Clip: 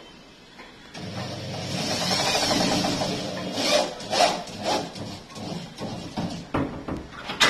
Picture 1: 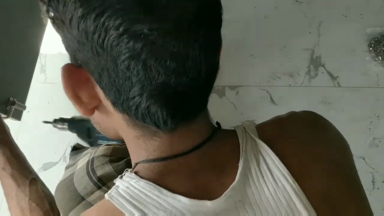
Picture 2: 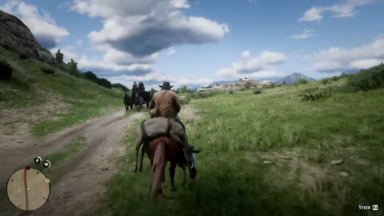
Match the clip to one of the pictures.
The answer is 1